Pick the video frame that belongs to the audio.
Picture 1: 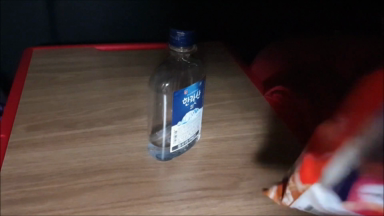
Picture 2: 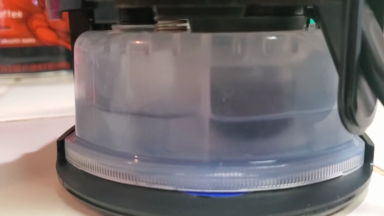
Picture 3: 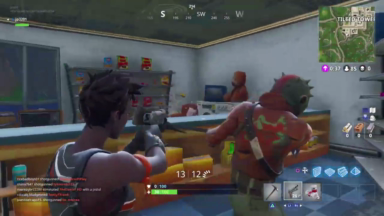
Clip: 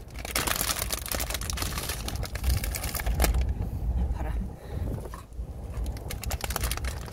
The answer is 1